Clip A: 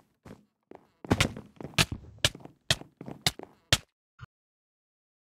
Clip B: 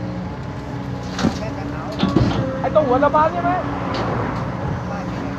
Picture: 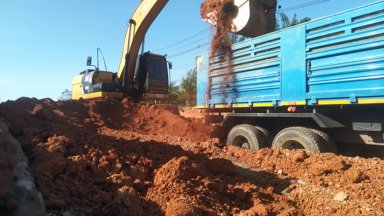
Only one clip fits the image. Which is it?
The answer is B